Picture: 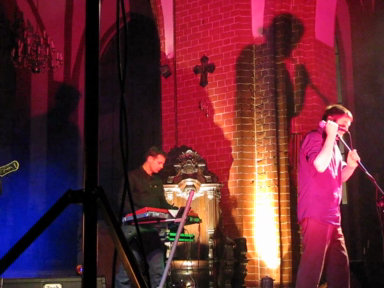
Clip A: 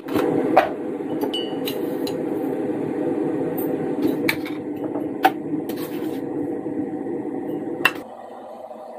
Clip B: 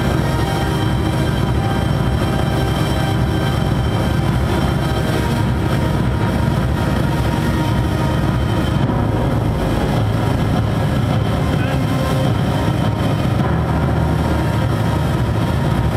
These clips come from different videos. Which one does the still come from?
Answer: B